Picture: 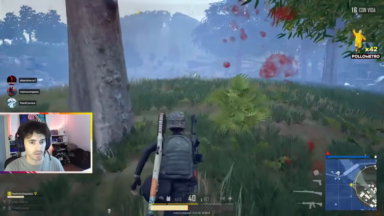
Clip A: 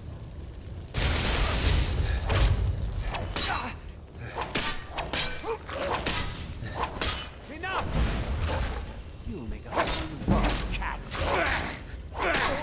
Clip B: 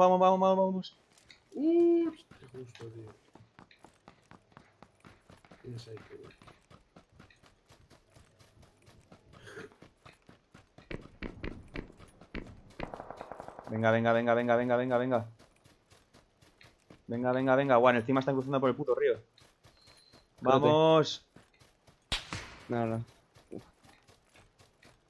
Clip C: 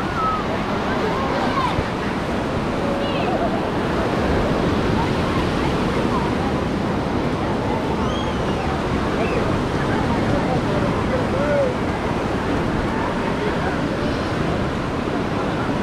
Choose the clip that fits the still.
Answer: B